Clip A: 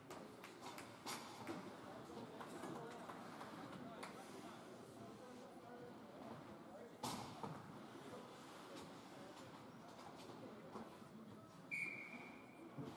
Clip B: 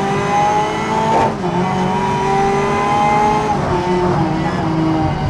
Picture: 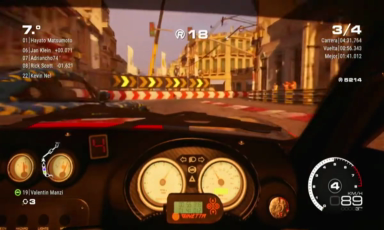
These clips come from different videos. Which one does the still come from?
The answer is B